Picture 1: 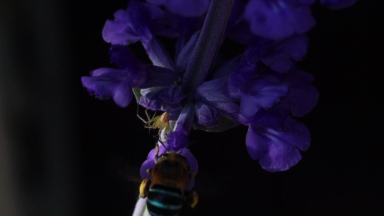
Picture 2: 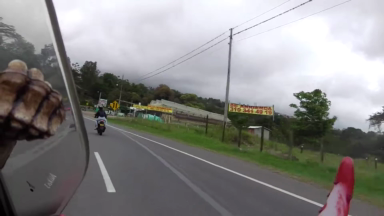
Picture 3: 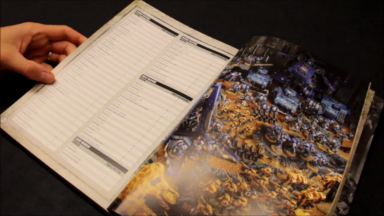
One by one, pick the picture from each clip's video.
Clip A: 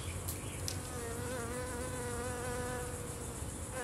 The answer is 1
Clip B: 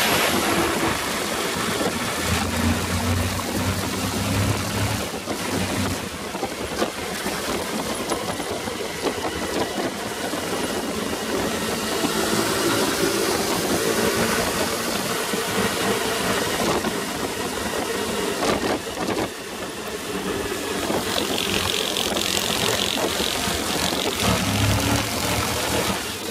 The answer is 2